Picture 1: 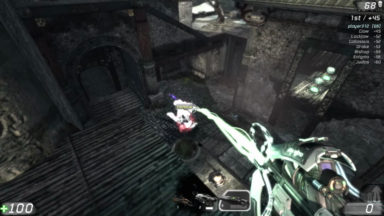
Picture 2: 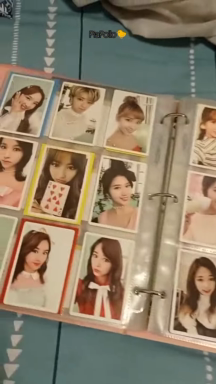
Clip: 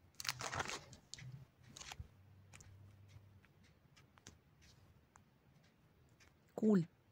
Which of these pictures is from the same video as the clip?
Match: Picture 2